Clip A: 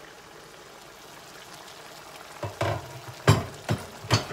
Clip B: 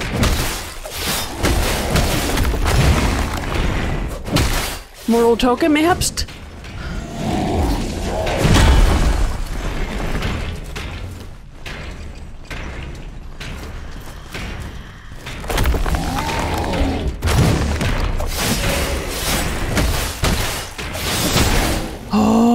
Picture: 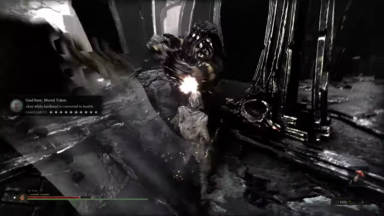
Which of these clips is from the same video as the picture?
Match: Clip B